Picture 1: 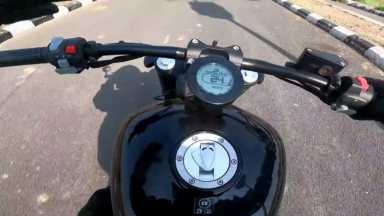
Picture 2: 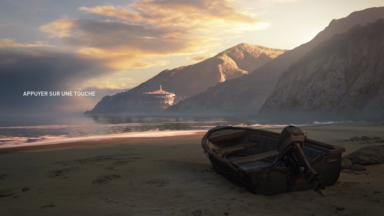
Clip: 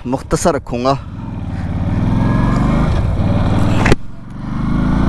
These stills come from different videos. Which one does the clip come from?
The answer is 1